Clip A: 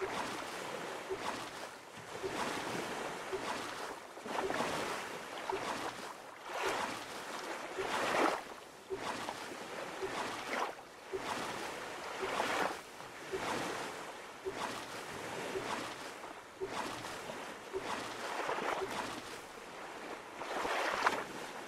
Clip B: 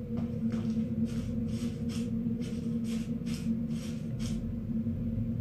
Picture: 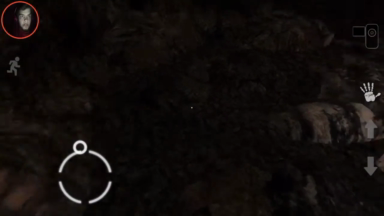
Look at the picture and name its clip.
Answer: B